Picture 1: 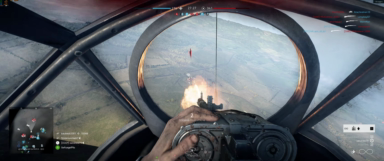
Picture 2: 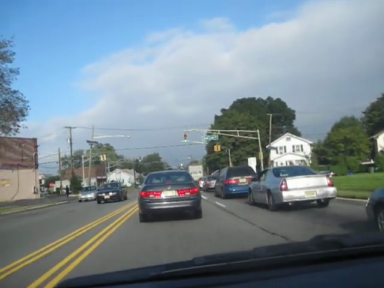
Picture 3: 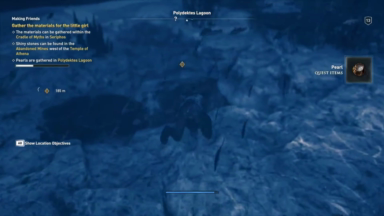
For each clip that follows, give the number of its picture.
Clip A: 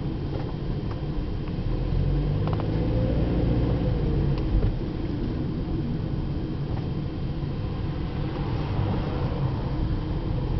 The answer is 2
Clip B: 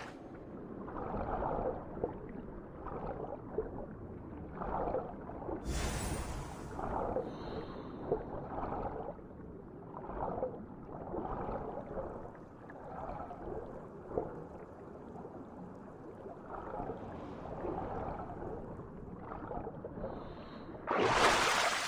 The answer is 3